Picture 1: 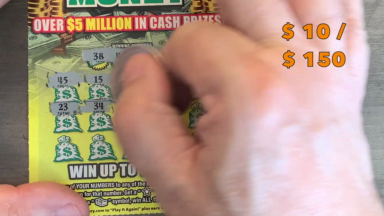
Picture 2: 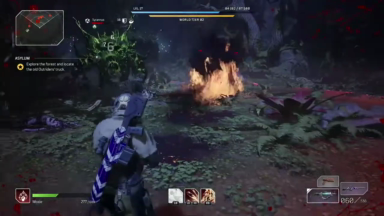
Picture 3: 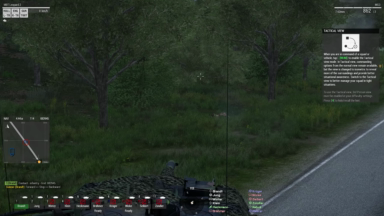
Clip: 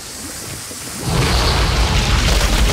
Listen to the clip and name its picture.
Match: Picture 2